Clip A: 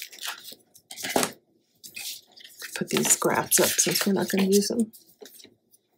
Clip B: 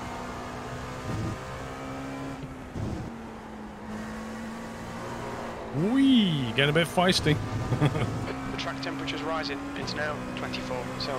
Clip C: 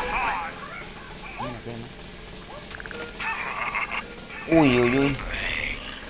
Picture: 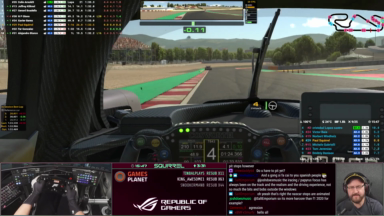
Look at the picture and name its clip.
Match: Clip B